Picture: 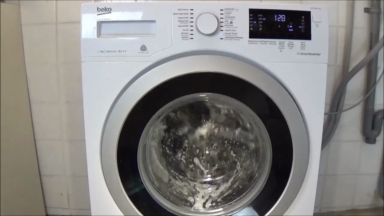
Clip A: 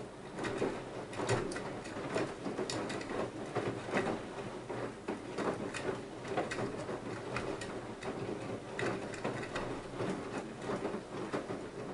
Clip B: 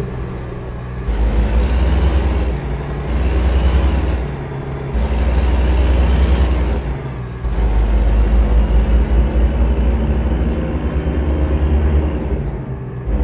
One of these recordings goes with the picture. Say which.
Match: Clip A